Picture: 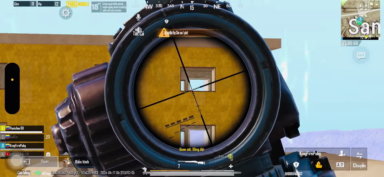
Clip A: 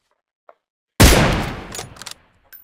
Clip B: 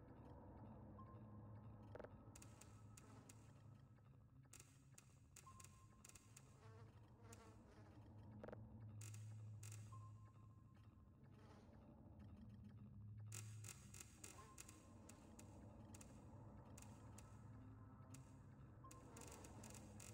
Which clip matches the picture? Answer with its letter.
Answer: A